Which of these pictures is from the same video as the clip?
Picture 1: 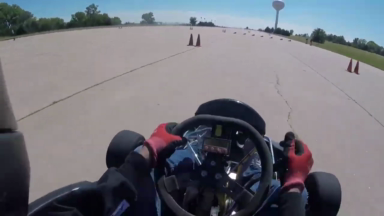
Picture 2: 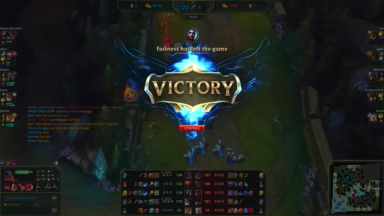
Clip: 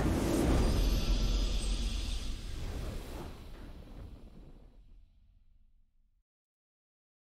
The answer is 2